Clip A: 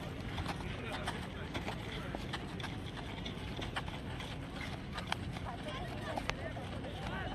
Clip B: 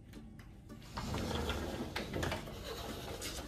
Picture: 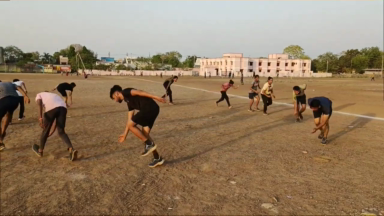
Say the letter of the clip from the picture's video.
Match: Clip A